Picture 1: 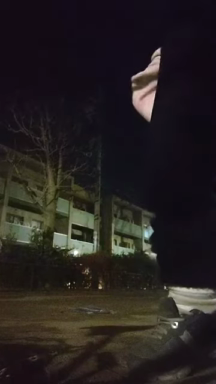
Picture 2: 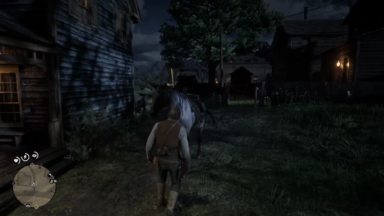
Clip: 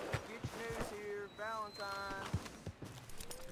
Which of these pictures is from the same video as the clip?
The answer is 2